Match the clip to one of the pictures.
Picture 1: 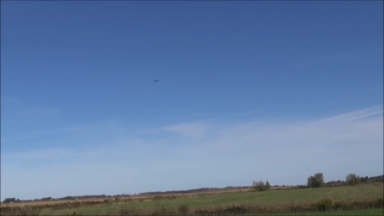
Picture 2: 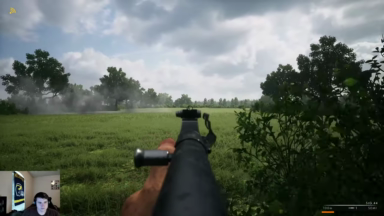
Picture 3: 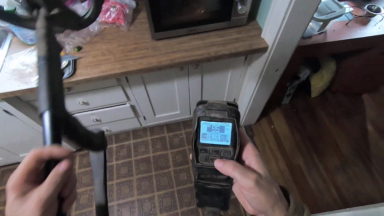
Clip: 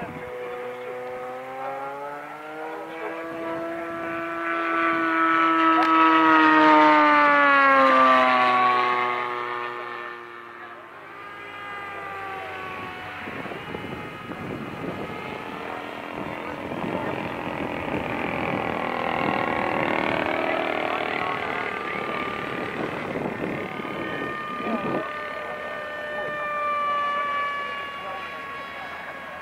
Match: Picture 1